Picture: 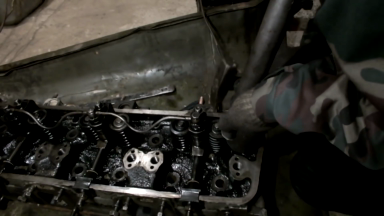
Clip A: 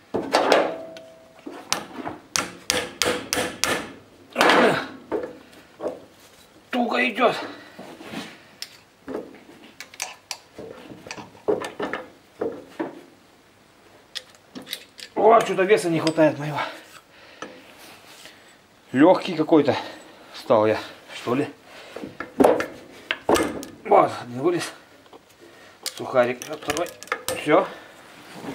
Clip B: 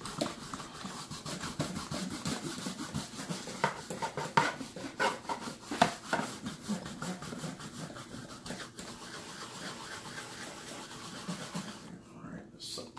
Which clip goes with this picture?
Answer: A